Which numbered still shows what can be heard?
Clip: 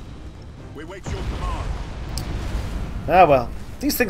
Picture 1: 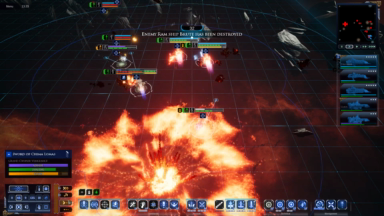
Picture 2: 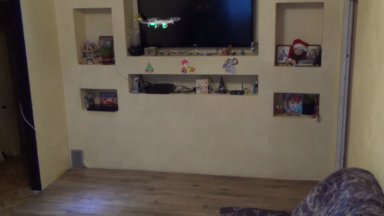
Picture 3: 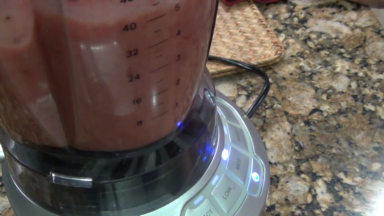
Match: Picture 1